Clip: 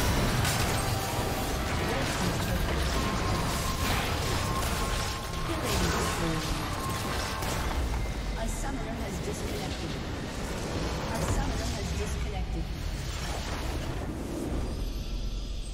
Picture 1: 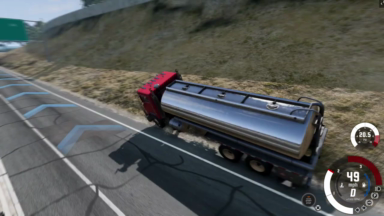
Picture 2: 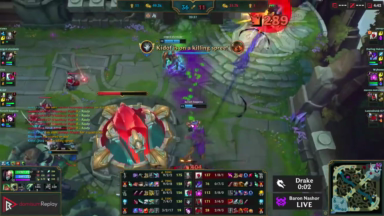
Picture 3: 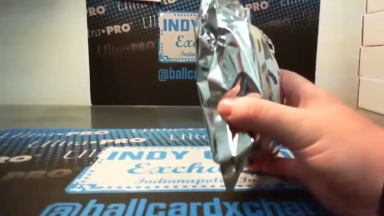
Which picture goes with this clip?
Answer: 2